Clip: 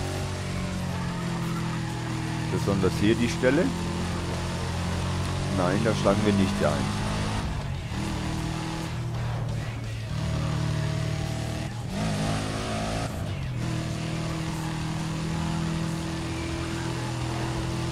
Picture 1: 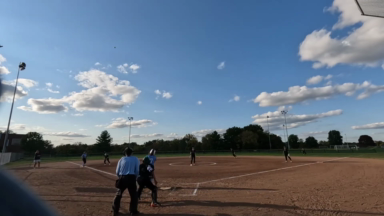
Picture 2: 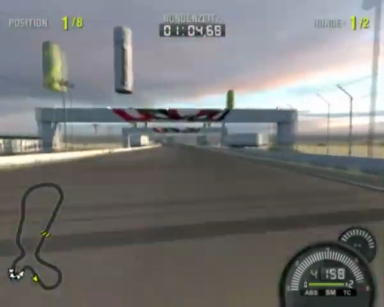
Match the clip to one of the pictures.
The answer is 2